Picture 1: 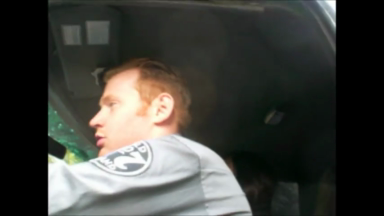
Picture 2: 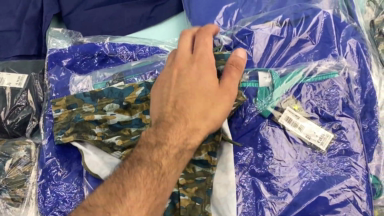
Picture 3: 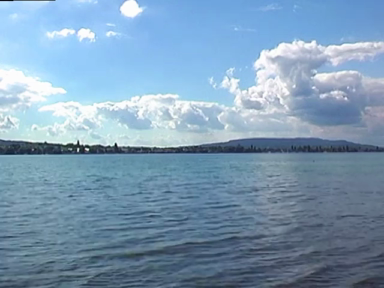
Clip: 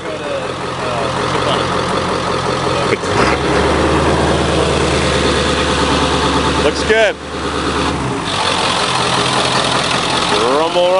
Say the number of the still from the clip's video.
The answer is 1